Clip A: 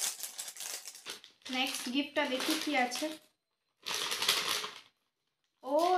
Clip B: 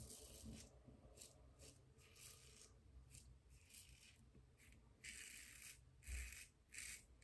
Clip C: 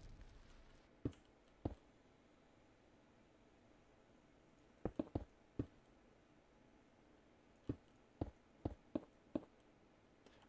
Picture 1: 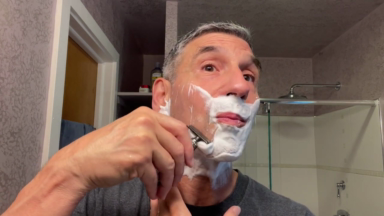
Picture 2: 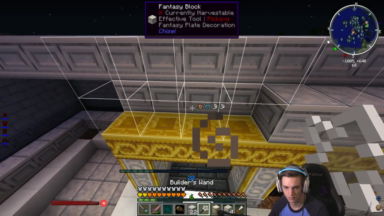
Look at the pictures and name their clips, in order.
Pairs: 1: B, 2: C